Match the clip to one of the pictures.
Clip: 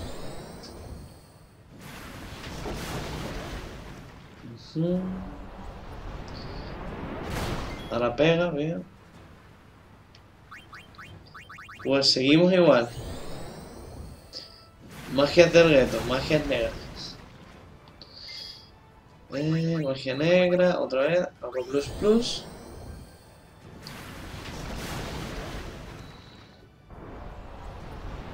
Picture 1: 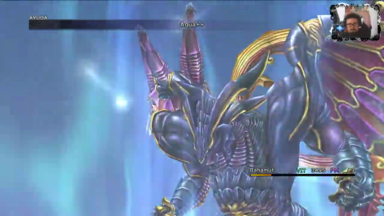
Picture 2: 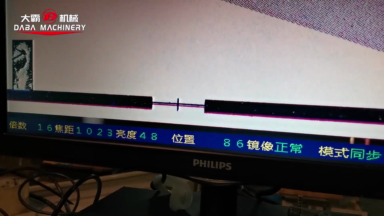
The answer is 1